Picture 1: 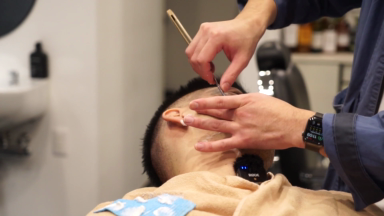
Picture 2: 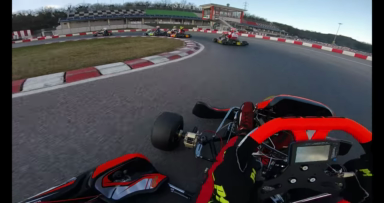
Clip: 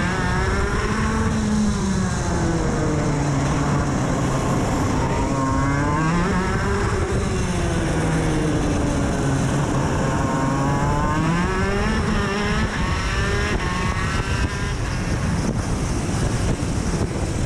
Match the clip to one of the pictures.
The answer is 2